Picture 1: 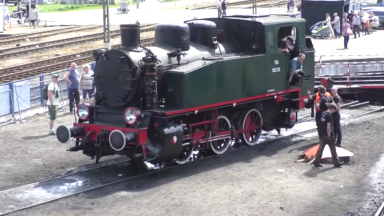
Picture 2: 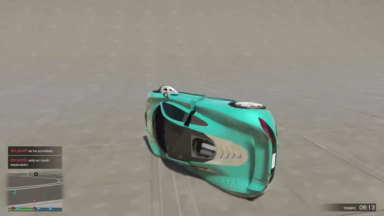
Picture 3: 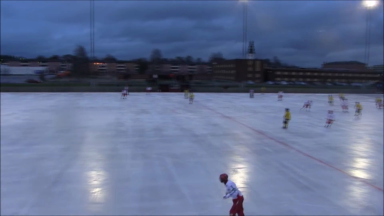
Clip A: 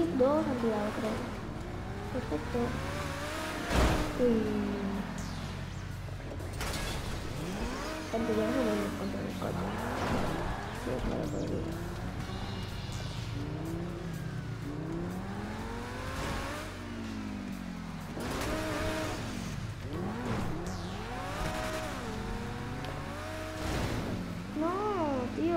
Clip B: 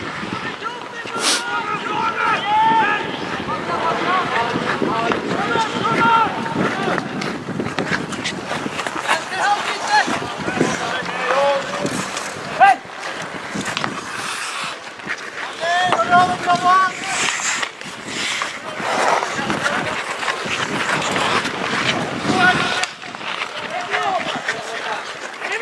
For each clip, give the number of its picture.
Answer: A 2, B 3